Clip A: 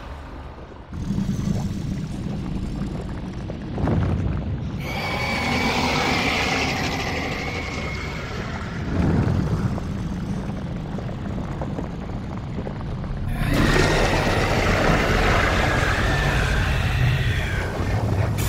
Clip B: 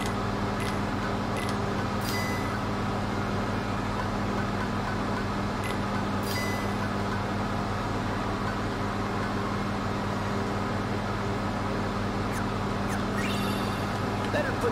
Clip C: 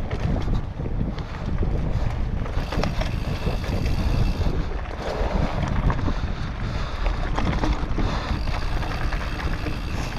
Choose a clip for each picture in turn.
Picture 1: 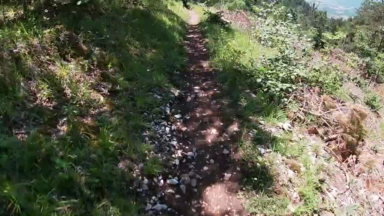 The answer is C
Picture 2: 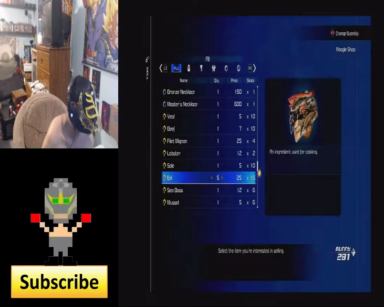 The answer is B